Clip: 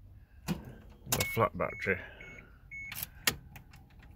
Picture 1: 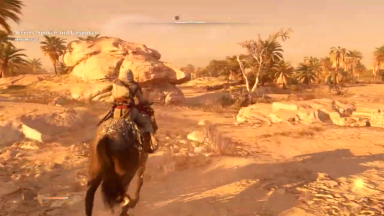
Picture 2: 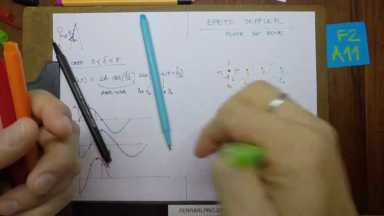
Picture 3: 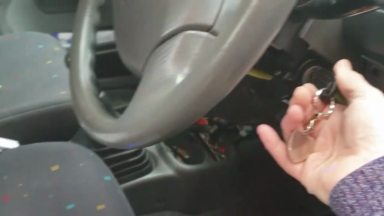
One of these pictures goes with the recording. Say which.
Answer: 3